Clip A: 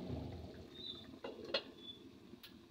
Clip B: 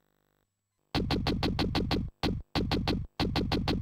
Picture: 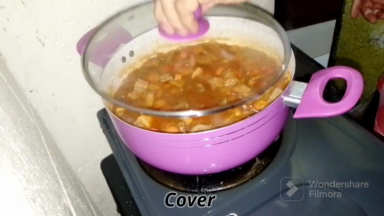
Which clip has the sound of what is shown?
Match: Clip A